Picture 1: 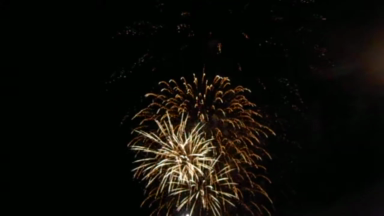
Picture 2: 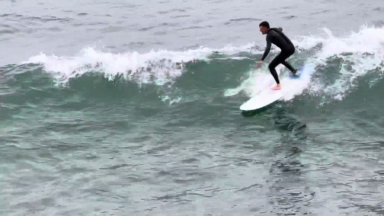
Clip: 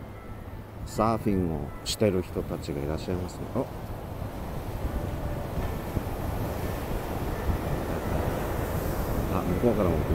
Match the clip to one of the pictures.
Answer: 2